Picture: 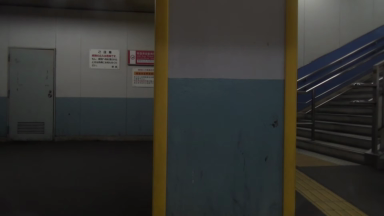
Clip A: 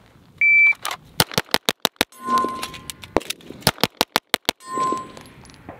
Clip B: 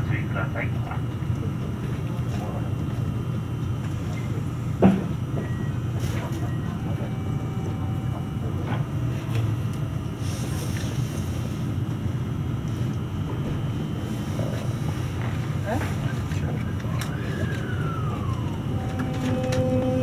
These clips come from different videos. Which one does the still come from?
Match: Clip B